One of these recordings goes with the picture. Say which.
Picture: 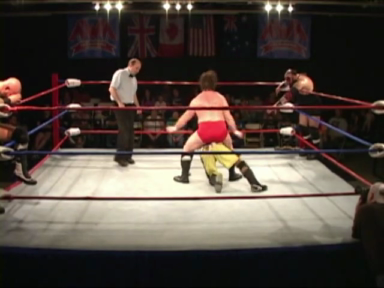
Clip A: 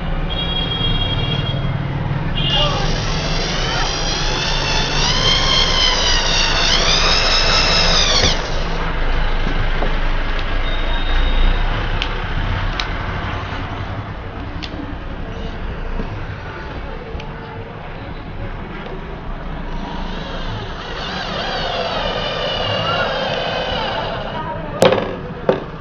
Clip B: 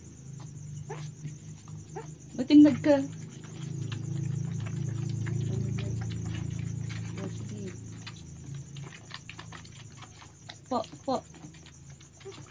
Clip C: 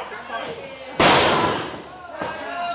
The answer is C